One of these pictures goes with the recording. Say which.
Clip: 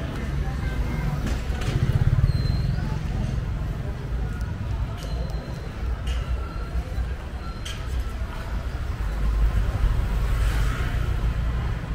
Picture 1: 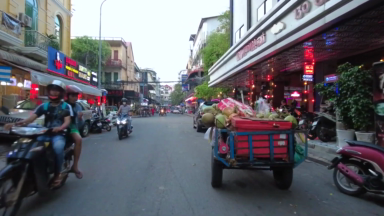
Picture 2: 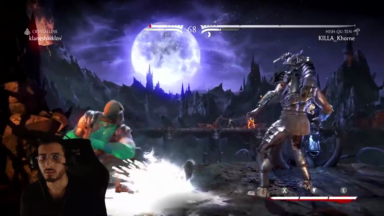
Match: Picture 1